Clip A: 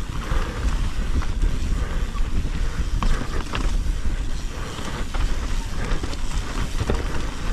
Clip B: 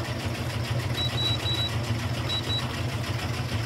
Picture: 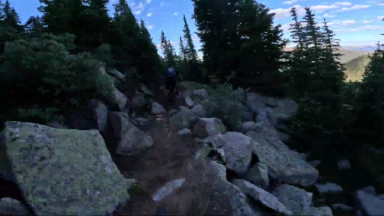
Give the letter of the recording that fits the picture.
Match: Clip A